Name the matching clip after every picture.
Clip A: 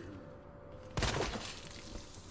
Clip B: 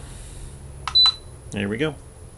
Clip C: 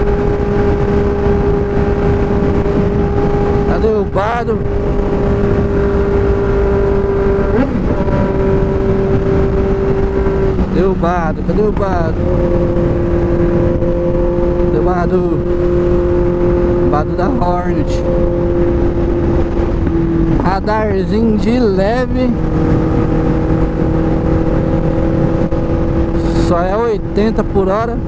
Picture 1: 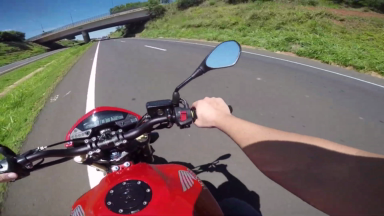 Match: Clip C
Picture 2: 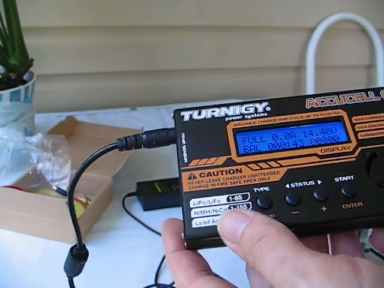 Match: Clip B